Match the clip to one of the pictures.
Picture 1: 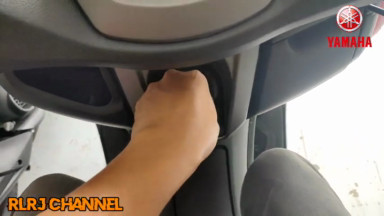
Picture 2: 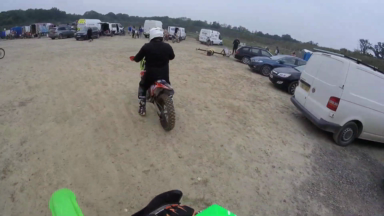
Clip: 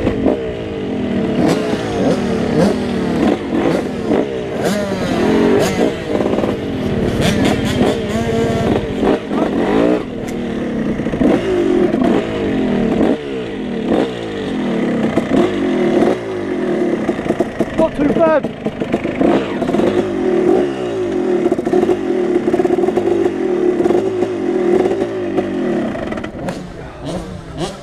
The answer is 2